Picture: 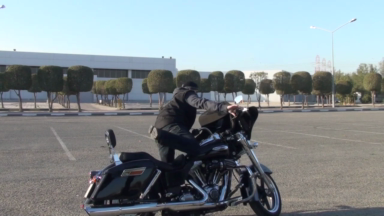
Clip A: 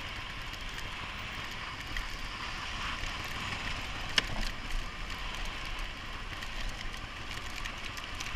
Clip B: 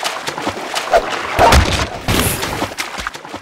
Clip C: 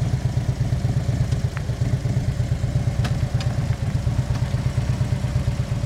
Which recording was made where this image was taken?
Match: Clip C